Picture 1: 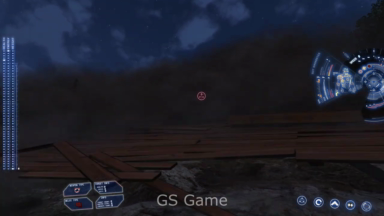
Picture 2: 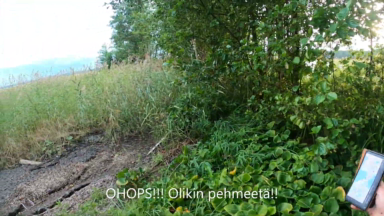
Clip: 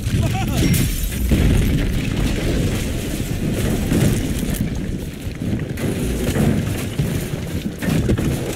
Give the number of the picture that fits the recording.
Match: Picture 1